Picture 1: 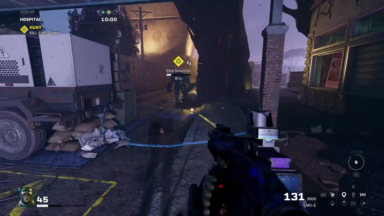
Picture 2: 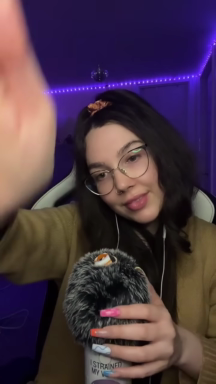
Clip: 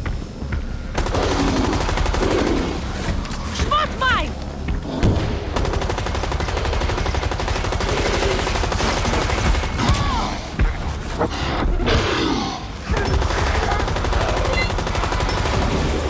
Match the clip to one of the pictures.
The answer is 1